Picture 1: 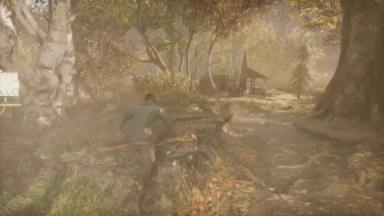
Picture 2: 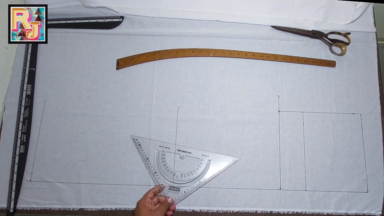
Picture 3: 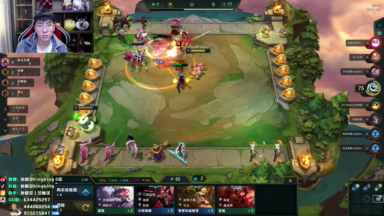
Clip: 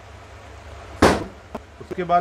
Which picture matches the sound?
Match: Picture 2